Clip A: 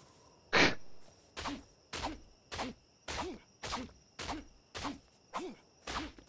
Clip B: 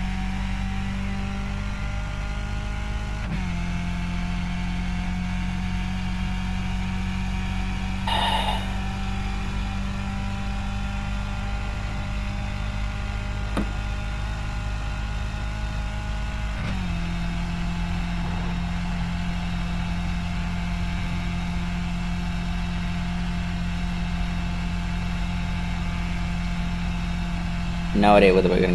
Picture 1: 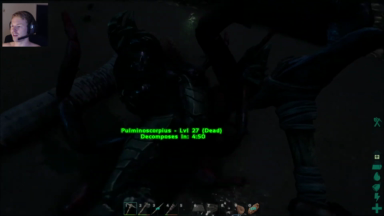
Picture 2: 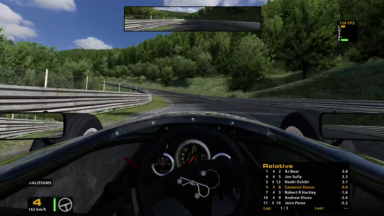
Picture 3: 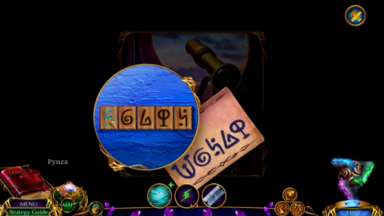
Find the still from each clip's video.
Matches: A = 1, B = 2